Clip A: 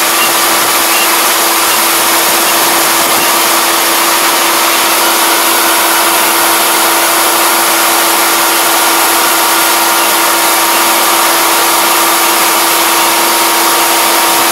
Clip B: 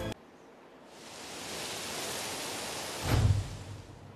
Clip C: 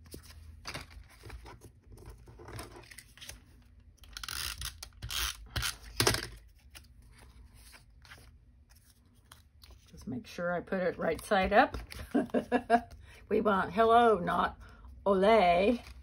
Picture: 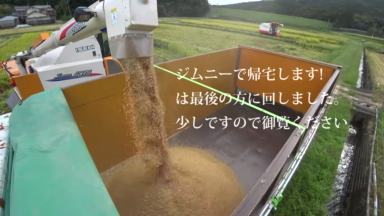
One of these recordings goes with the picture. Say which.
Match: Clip A